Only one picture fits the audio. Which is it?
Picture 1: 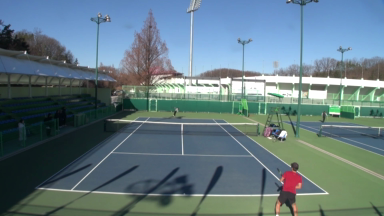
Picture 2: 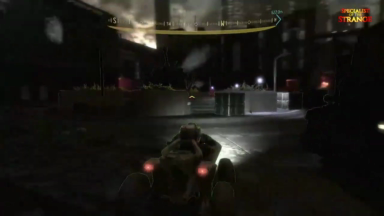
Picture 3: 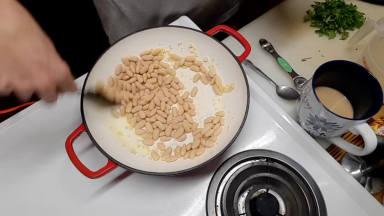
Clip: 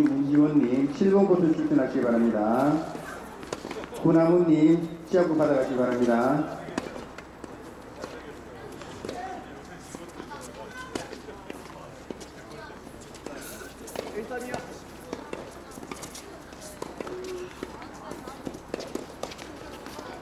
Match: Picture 1